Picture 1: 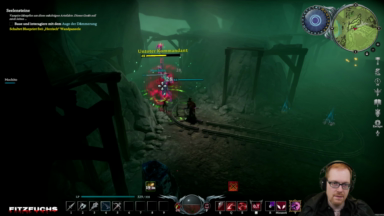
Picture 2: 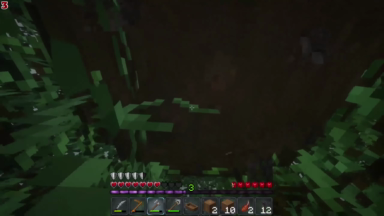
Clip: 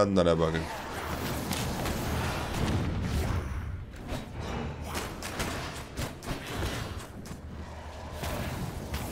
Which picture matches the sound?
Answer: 1